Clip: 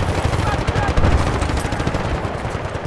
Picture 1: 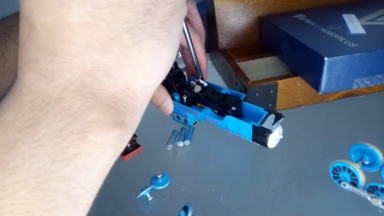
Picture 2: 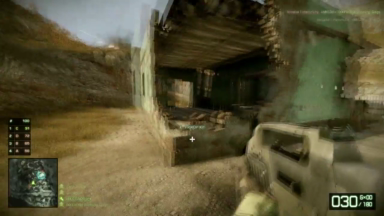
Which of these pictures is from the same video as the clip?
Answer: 2